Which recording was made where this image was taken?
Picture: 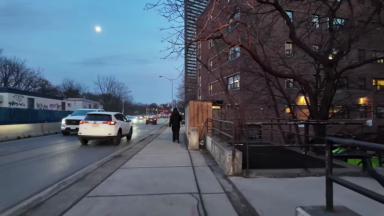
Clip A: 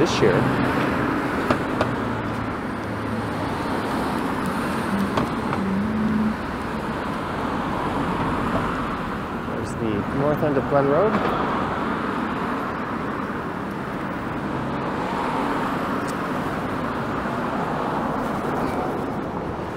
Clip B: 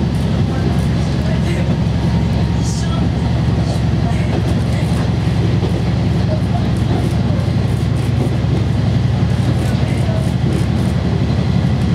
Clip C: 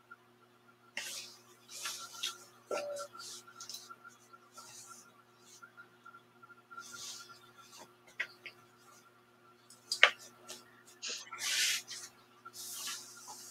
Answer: A